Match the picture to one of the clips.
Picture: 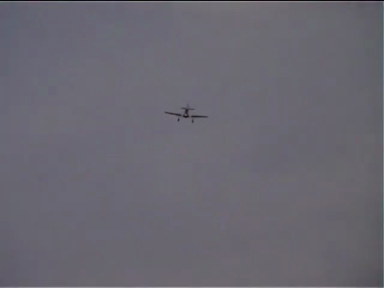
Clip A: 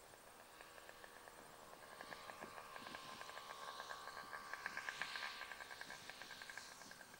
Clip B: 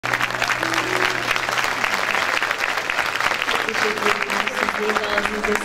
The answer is A